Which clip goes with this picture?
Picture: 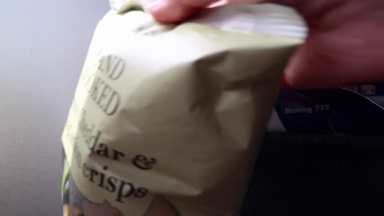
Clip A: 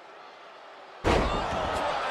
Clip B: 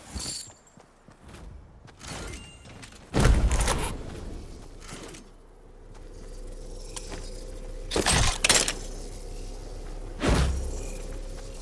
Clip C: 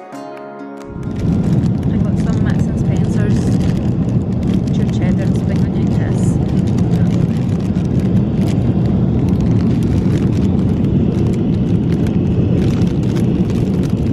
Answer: C